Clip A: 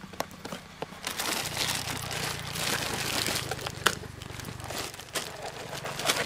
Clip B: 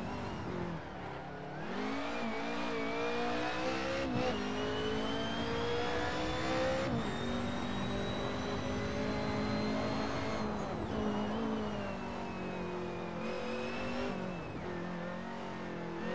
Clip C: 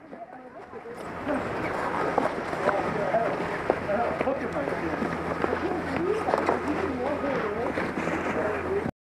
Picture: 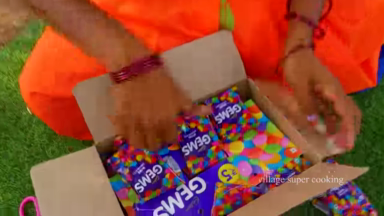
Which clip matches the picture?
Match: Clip A